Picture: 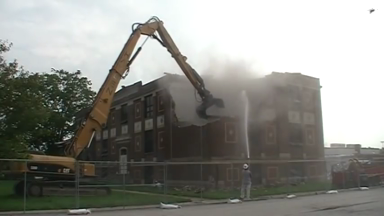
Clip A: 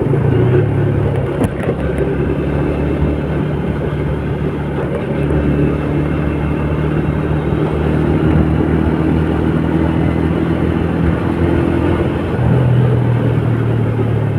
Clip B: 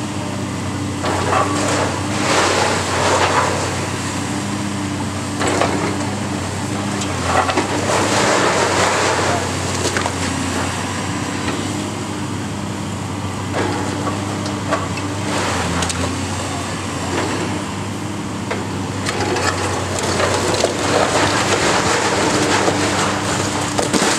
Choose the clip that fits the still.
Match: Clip B